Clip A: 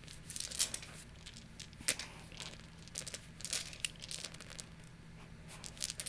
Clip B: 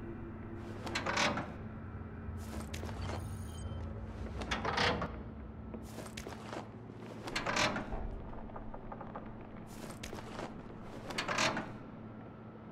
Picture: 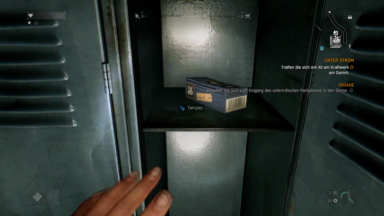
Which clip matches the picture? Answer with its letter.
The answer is B